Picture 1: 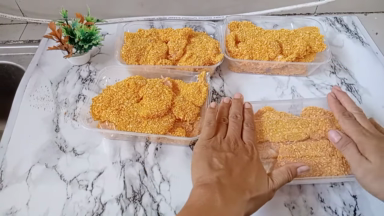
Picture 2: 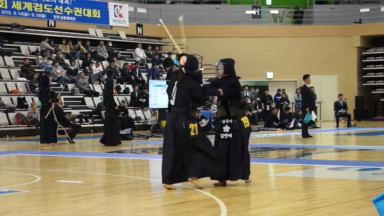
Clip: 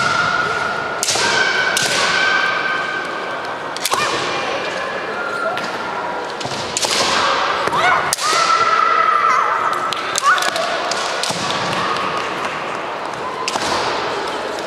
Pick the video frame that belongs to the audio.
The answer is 2